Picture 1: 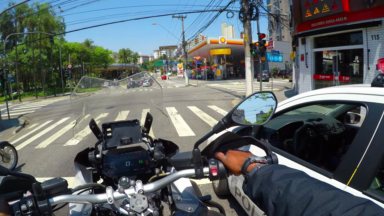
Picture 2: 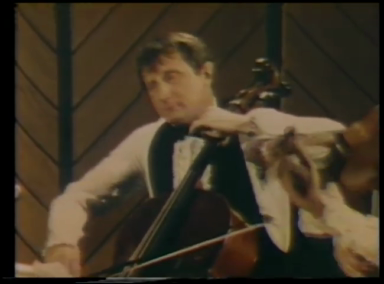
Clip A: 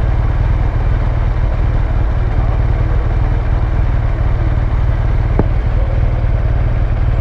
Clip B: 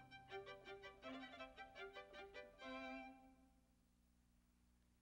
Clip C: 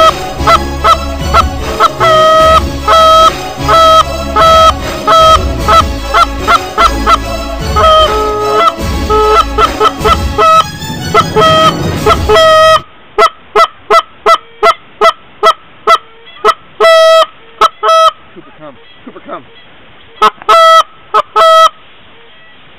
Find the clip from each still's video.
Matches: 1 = A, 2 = B